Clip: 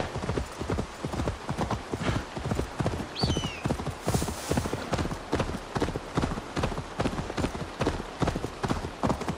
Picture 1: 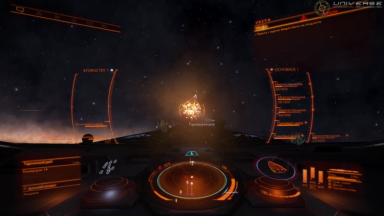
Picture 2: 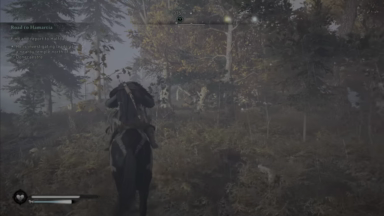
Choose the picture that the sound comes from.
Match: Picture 2